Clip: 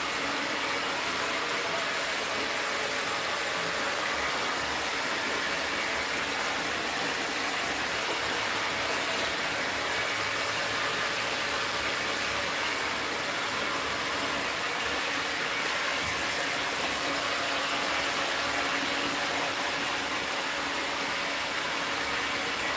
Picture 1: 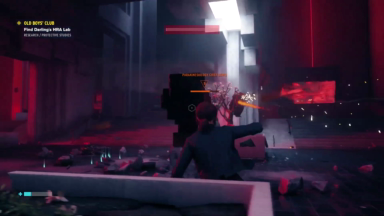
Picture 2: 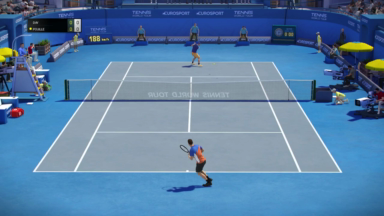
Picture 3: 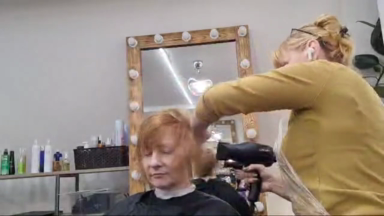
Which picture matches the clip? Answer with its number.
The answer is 3